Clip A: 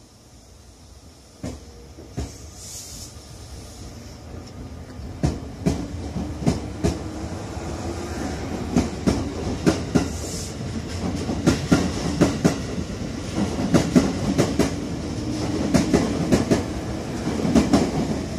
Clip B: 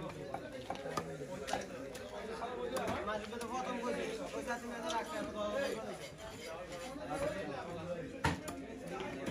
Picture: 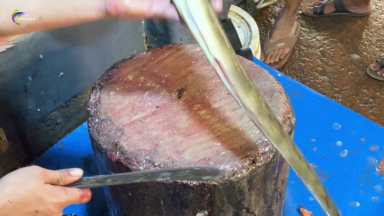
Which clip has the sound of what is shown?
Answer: B